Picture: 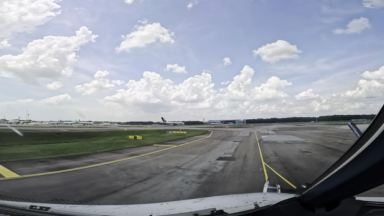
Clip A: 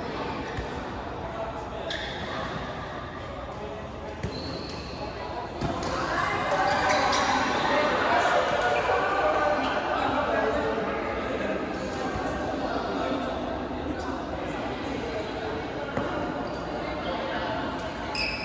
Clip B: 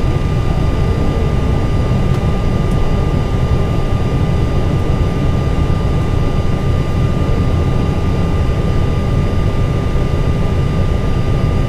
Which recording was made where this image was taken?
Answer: B